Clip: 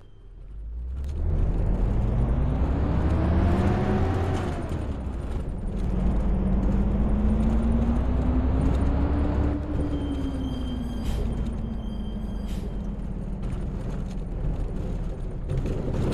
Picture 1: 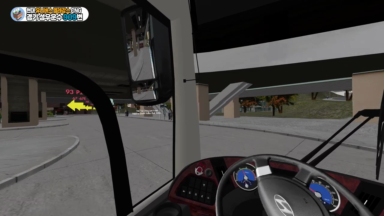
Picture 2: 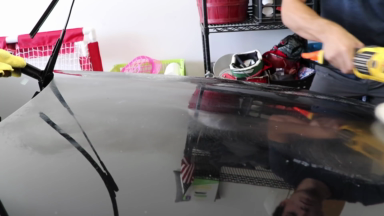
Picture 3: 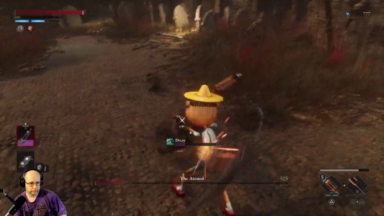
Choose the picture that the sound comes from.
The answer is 1